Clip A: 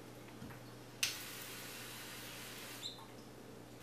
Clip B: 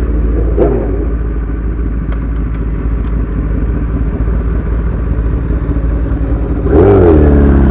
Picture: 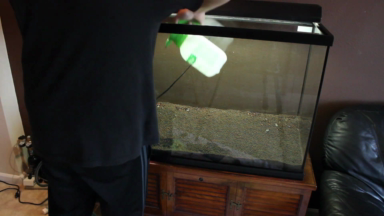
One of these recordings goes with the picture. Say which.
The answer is A